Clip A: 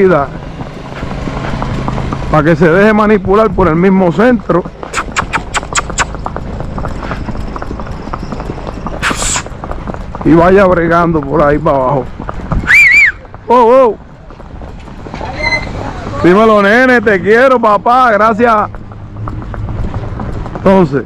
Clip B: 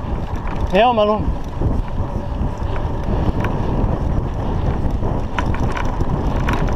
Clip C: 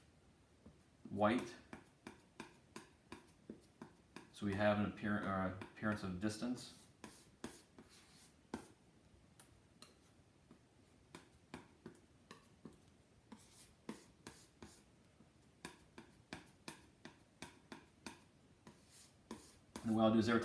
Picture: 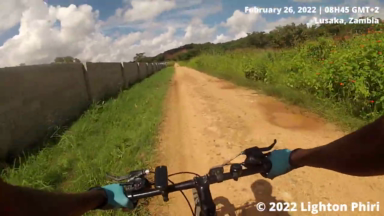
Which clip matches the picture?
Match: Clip B